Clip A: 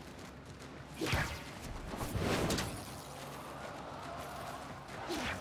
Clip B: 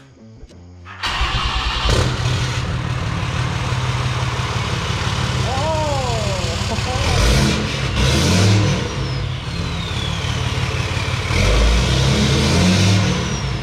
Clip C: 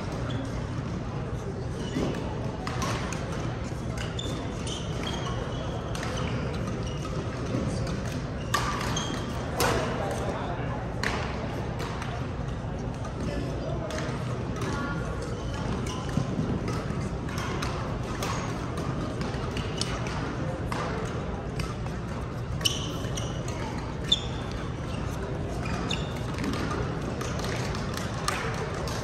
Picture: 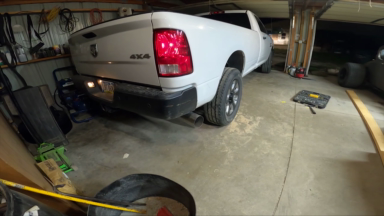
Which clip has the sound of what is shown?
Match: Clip B